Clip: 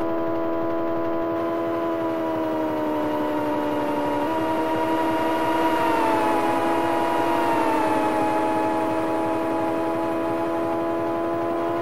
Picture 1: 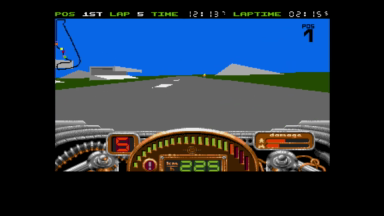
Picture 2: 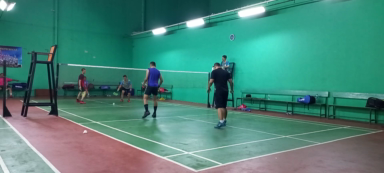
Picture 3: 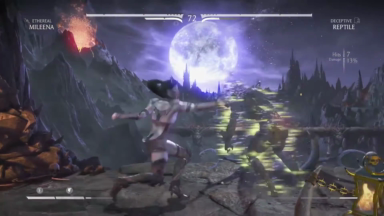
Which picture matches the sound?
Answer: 1